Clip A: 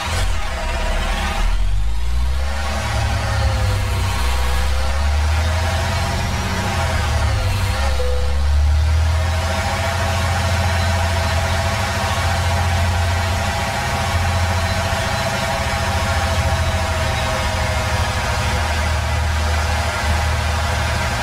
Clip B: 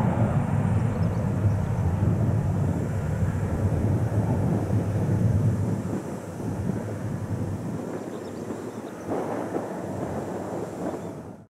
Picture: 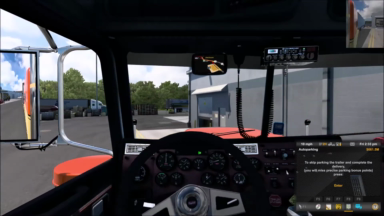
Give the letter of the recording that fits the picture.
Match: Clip A